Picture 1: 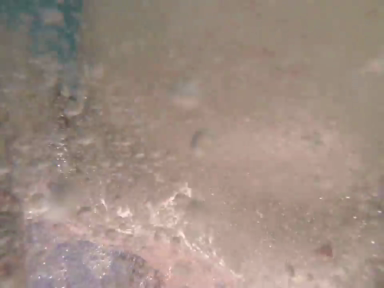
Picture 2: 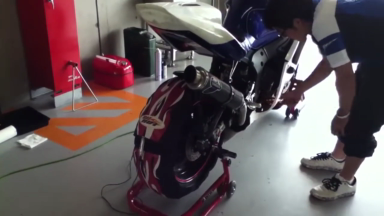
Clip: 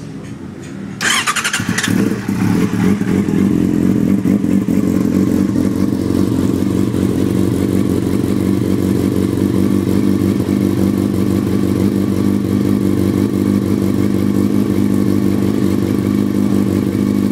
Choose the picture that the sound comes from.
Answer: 2